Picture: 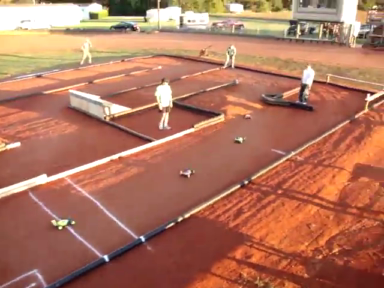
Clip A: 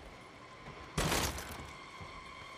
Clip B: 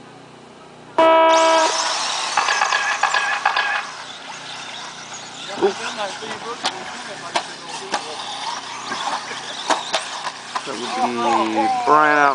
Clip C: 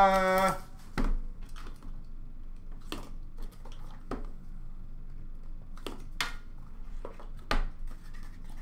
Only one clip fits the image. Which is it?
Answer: B